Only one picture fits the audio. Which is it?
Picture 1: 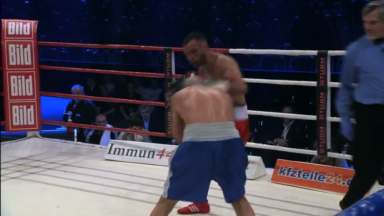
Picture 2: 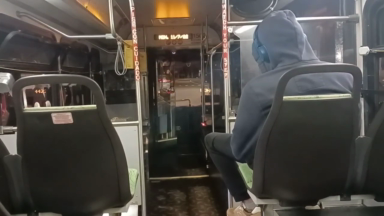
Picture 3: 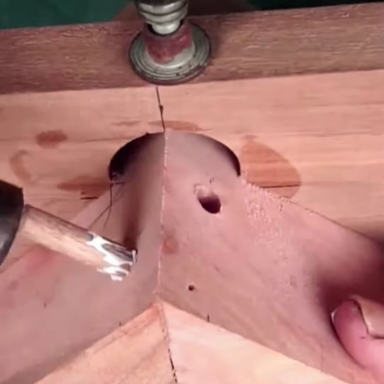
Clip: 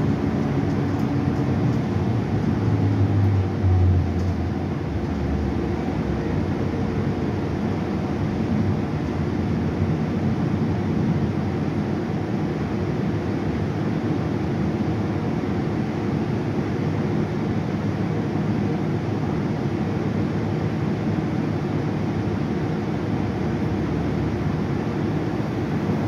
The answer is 2